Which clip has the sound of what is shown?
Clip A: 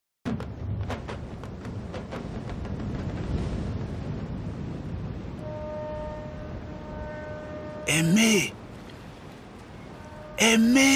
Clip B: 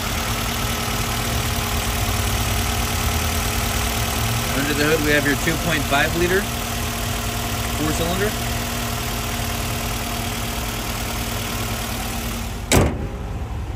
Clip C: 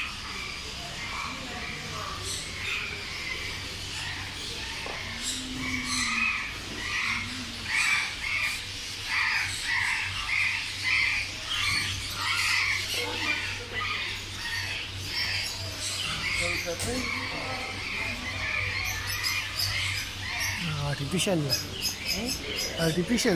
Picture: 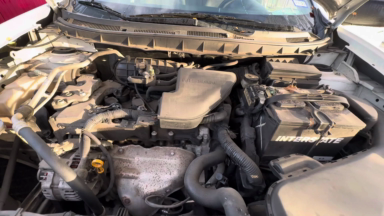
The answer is B